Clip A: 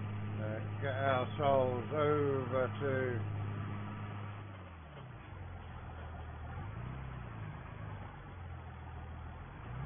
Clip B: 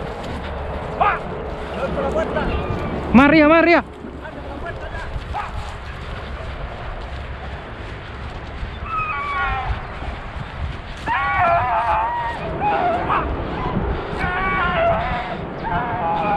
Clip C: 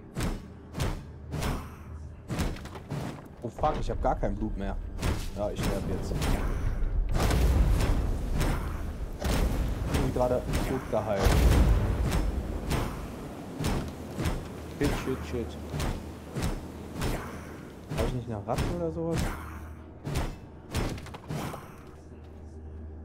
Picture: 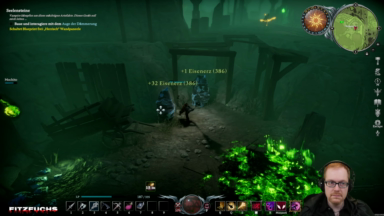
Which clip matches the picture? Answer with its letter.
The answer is C